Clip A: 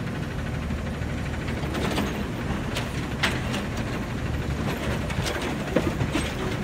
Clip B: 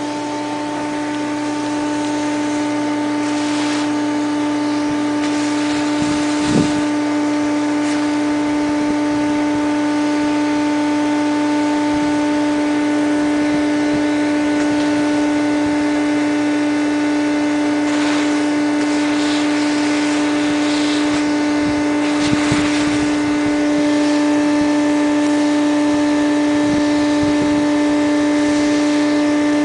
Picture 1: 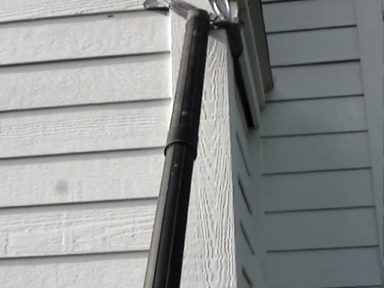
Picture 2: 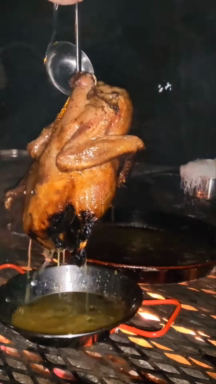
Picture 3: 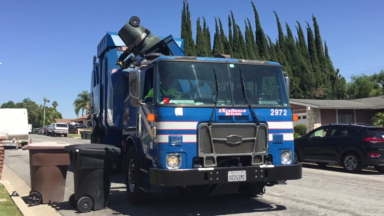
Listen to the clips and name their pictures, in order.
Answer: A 3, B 1